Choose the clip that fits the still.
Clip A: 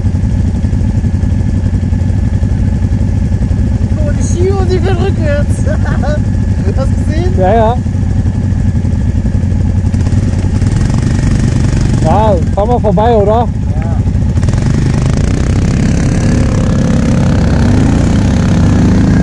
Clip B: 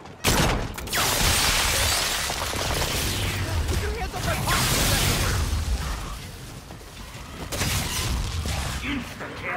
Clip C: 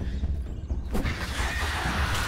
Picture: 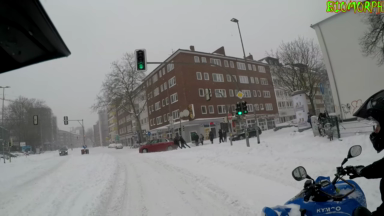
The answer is A